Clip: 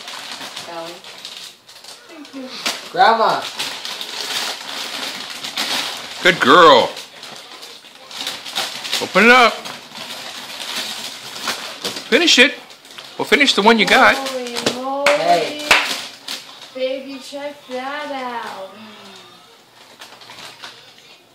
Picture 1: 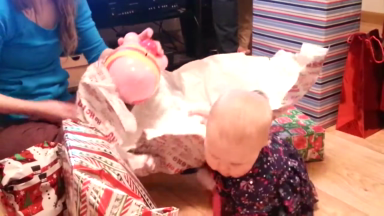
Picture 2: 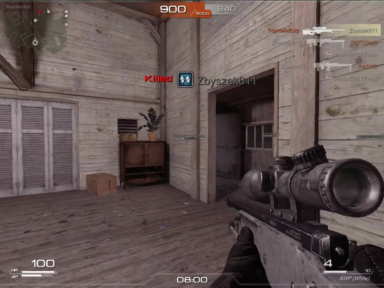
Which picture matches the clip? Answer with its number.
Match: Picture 1